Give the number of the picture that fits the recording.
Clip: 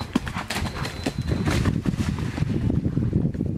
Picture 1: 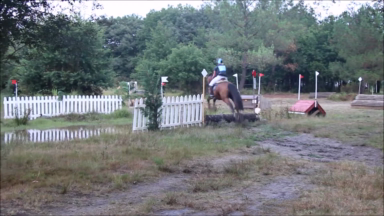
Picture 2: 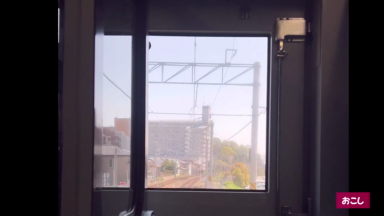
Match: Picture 1